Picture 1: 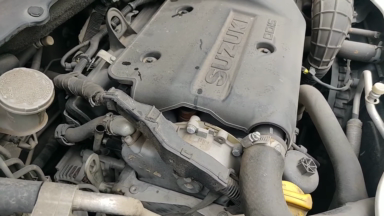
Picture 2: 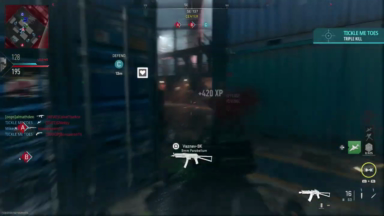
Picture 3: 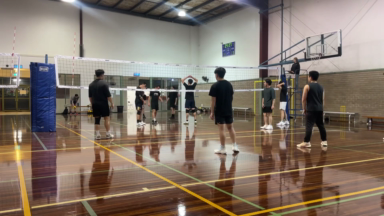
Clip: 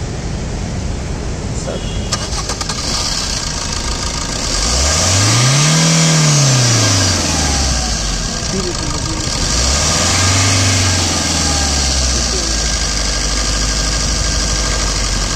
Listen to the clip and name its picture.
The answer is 1